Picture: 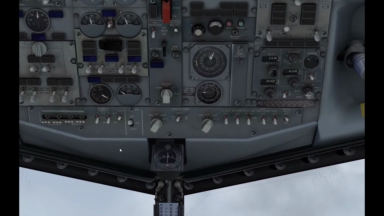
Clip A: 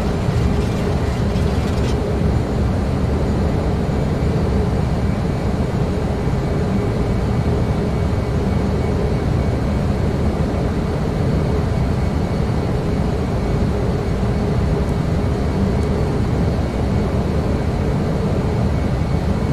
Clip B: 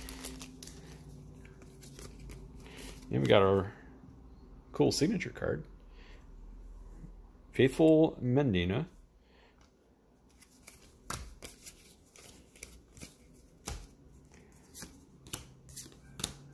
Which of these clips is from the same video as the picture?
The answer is A